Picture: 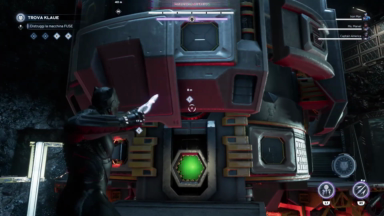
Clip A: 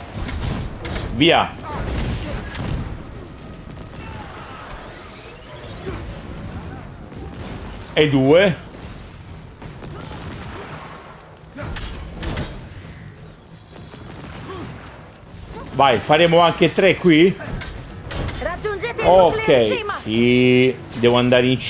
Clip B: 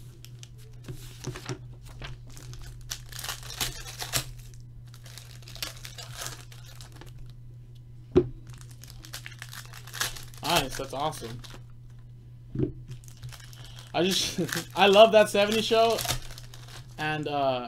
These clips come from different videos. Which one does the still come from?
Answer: A